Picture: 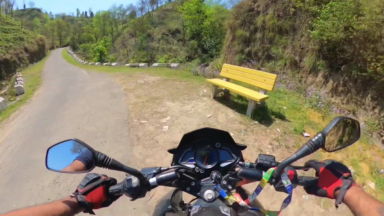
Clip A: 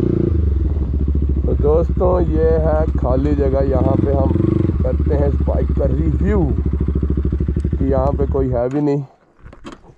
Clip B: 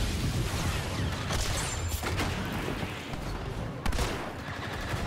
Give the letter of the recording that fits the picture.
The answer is A